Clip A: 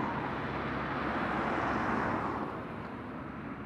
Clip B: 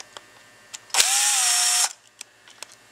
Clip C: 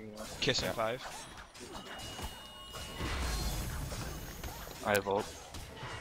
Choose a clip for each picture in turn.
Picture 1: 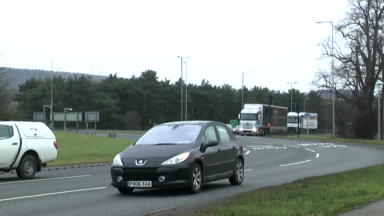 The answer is A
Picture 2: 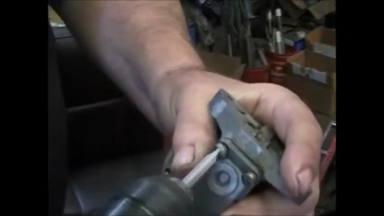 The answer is B